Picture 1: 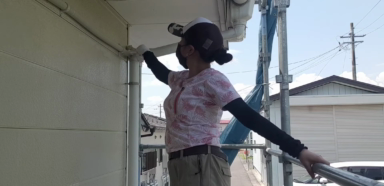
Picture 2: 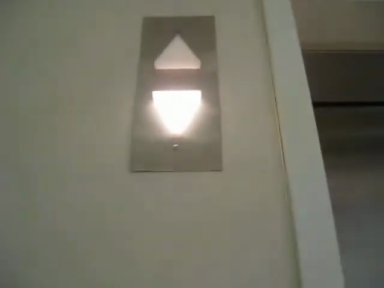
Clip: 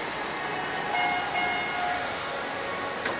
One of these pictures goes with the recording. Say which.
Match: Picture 2